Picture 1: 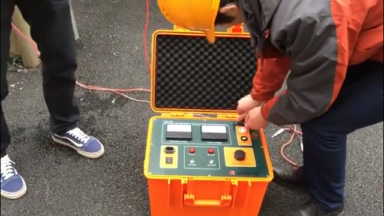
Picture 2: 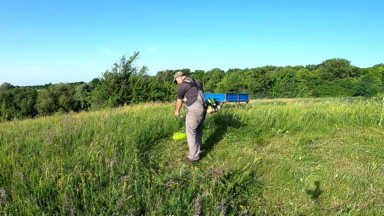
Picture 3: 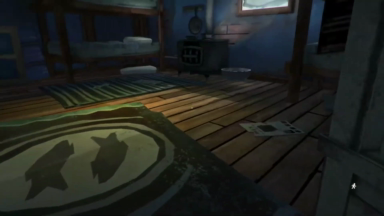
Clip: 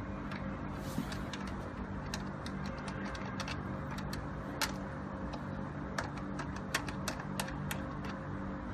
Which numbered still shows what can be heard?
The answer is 1